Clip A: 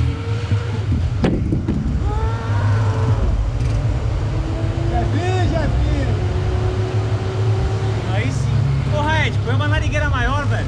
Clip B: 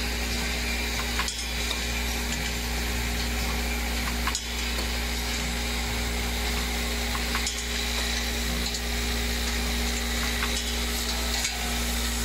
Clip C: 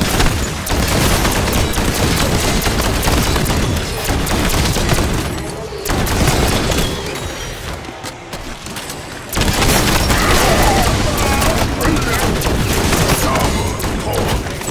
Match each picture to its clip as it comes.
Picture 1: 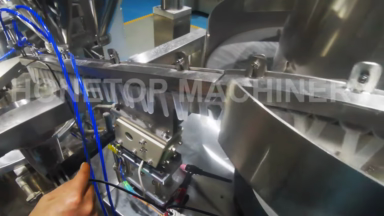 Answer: B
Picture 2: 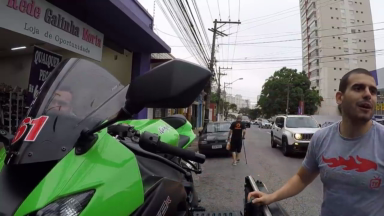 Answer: A